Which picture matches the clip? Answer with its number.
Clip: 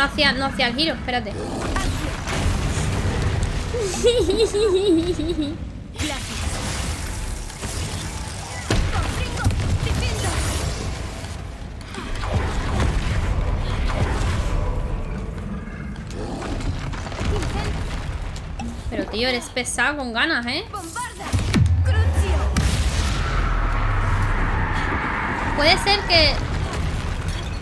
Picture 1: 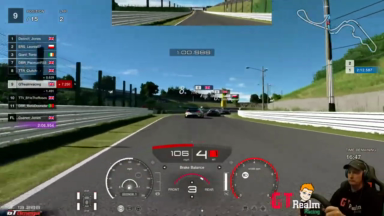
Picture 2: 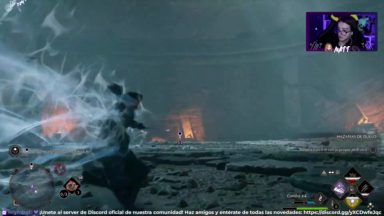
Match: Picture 2